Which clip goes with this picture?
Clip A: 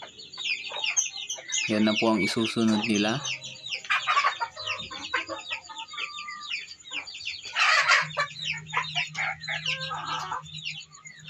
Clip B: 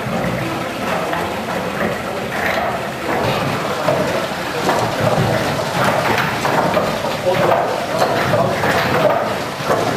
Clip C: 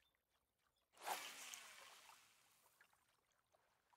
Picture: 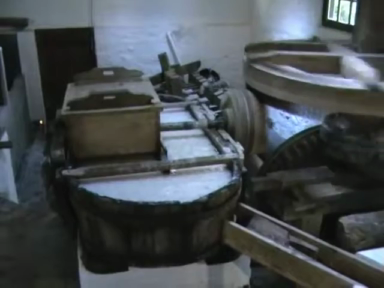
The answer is B